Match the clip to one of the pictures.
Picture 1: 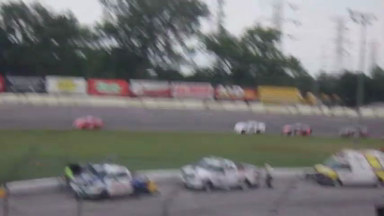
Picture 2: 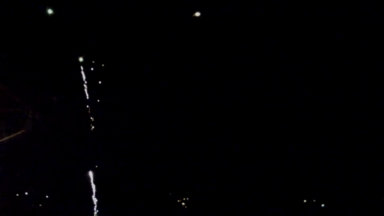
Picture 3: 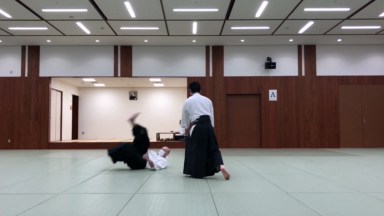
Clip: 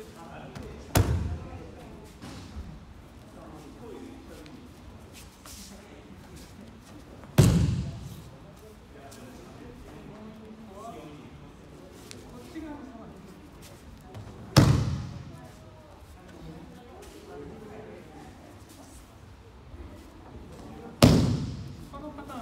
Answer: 3